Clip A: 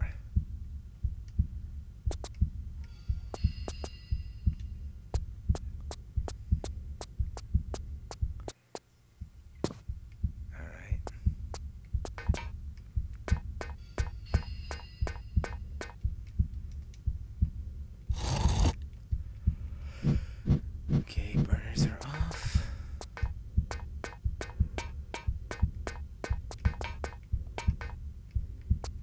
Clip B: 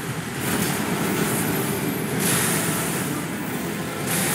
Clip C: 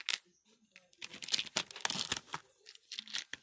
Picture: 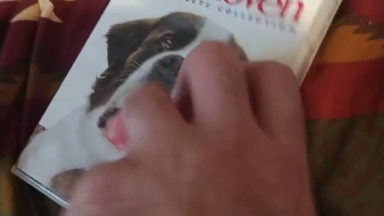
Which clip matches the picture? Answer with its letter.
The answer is C